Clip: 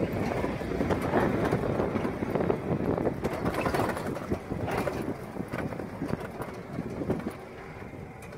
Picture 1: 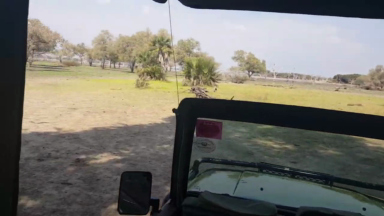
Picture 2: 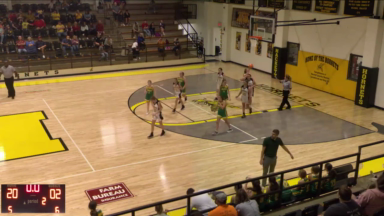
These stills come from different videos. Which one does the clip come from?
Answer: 1